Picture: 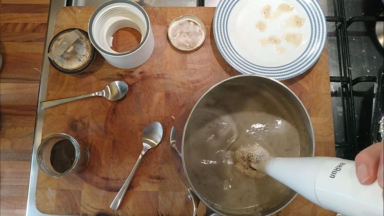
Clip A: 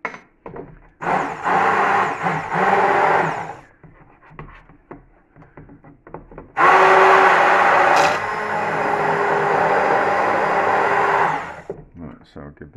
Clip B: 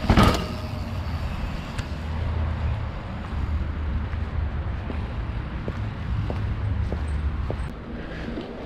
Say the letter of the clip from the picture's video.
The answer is A